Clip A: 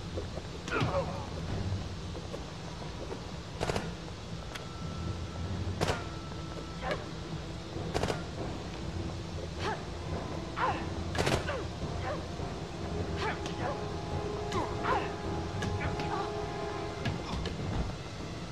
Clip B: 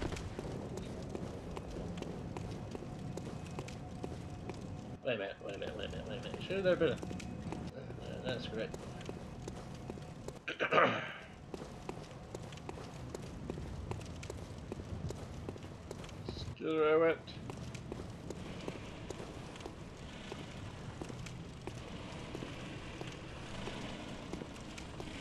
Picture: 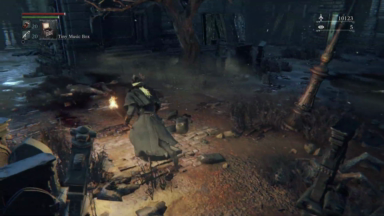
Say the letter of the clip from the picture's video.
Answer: B